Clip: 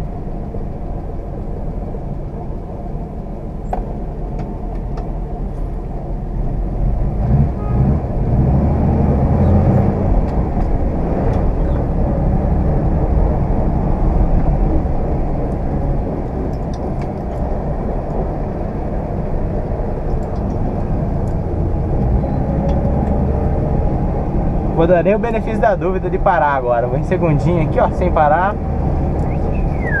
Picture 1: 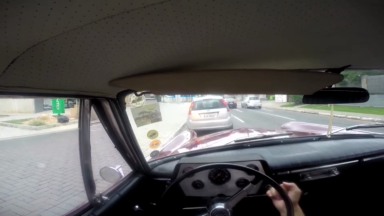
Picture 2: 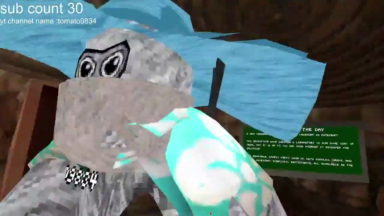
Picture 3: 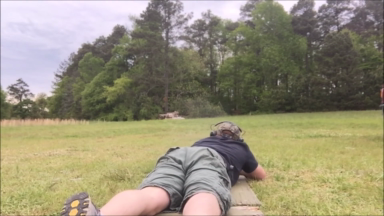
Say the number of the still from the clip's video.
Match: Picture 1